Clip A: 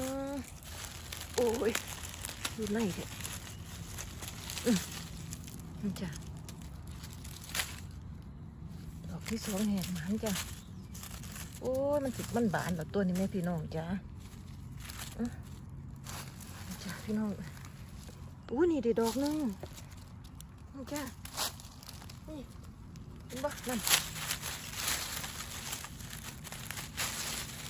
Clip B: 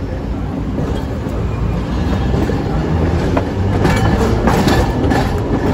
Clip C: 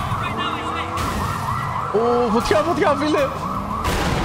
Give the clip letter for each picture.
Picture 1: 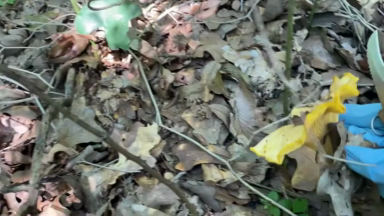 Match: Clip A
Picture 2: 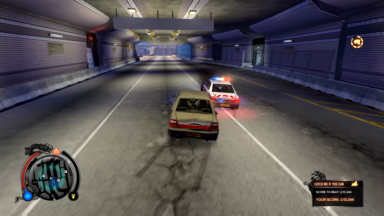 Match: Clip C